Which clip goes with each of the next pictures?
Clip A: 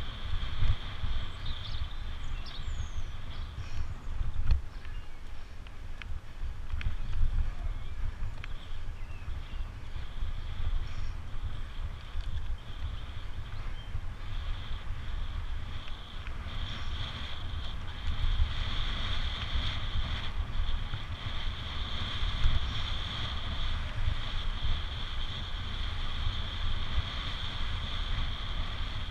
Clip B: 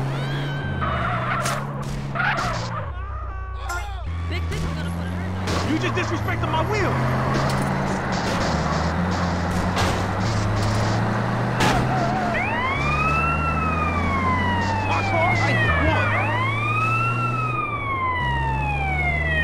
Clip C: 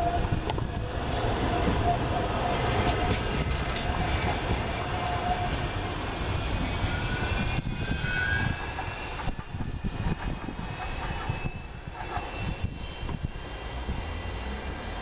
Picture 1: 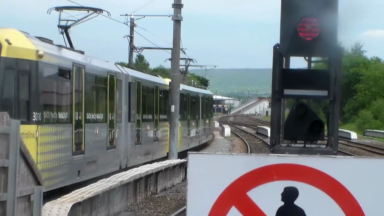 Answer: C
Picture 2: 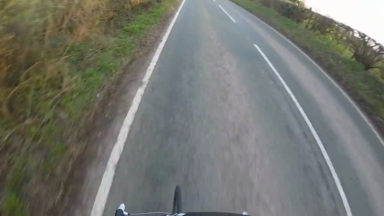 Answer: A